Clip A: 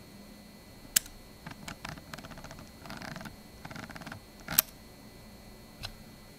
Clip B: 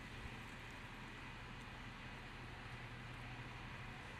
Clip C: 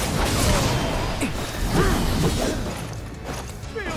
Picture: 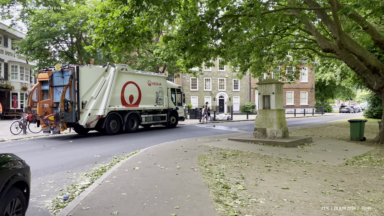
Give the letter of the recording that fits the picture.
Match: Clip B